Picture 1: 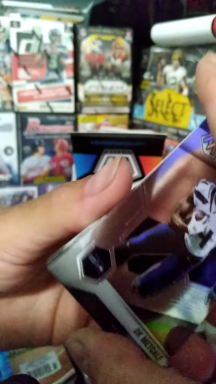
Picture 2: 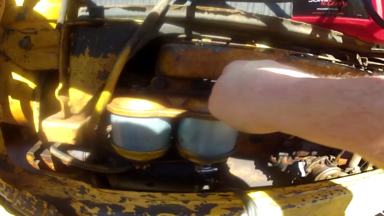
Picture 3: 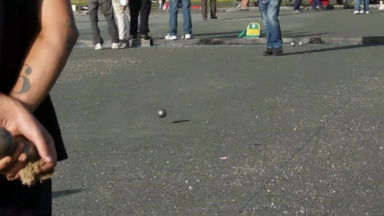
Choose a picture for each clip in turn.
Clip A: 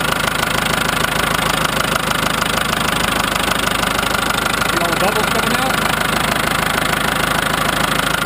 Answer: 2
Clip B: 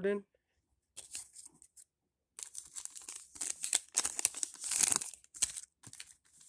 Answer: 1